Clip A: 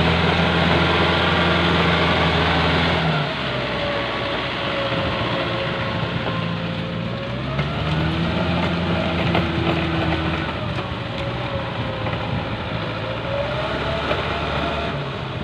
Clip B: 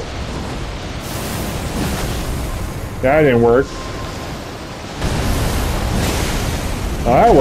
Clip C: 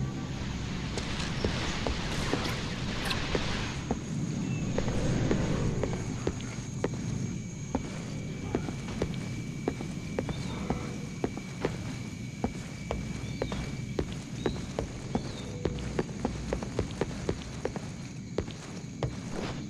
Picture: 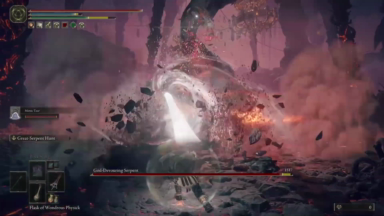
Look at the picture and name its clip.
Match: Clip B